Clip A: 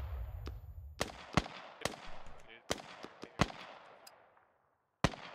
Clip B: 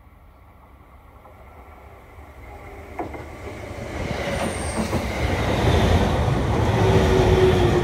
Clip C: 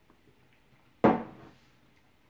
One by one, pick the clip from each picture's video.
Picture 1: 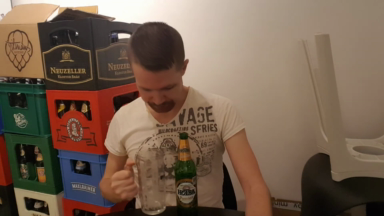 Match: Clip C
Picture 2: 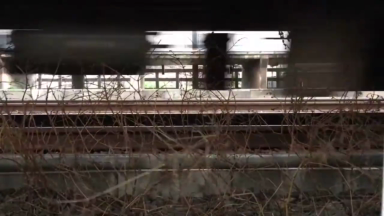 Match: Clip B